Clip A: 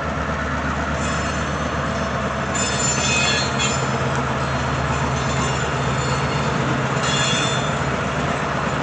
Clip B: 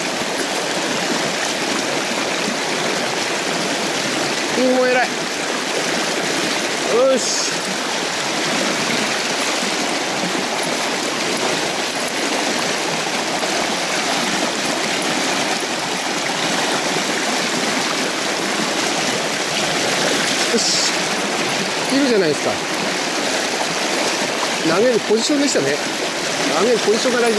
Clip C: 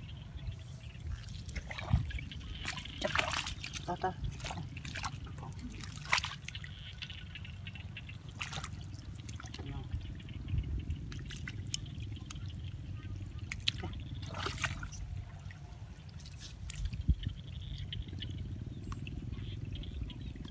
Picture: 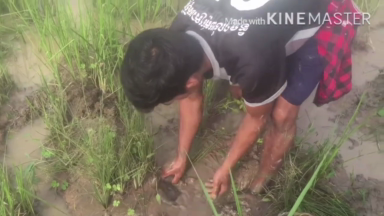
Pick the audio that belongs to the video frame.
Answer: C